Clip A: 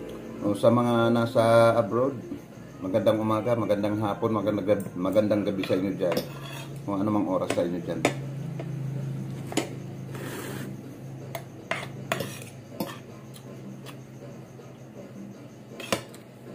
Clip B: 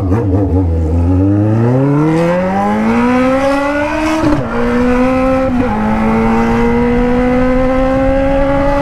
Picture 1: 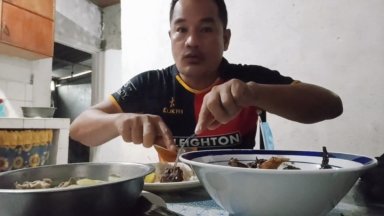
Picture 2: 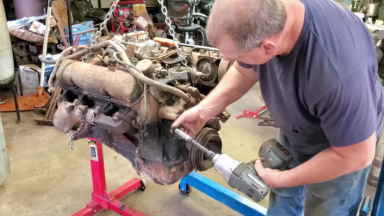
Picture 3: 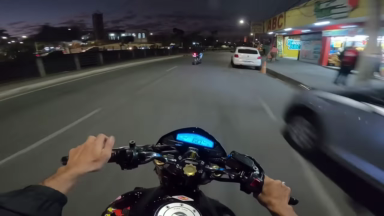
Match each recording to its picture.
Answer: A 1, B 3